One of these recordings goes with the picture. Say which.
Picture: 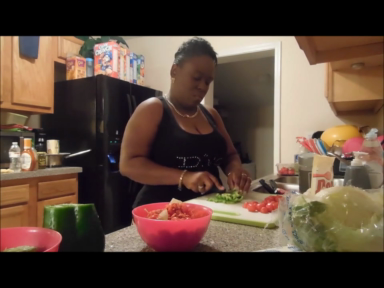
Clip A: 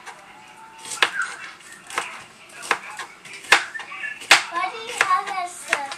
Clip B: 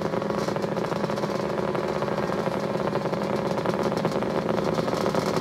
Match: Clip A